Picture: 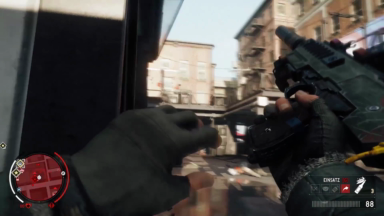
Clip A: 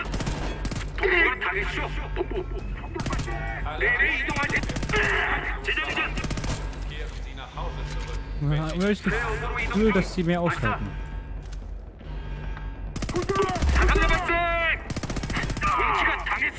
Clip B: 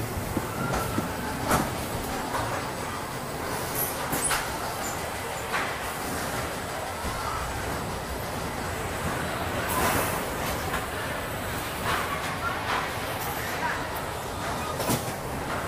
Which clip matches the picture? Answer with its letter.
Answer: A